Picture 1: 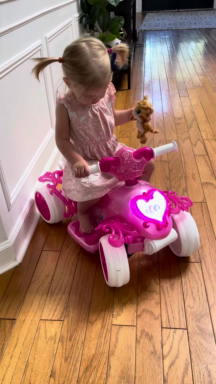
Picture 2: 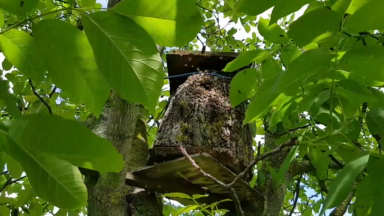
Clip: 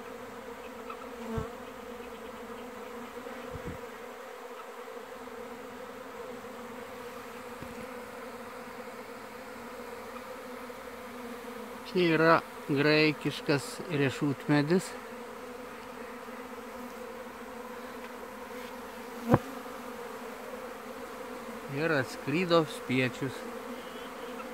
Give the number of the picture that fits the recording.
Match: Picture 2